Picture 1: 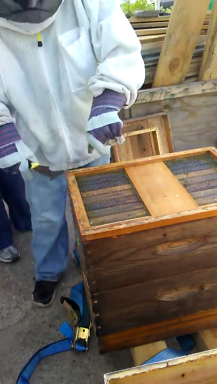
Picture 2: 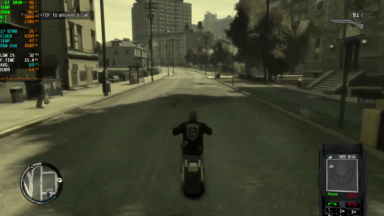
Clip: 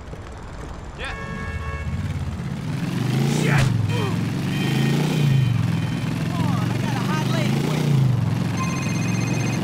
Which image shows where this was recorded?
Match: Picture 2